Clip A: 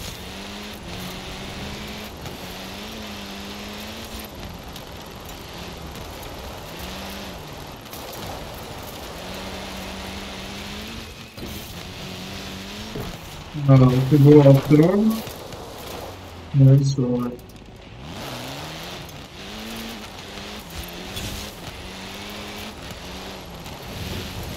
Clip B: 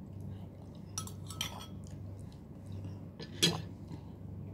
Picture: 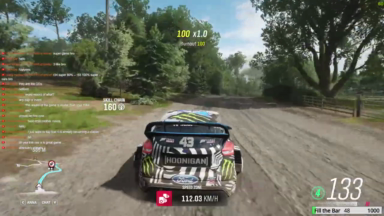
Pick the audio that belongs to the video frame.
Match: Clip A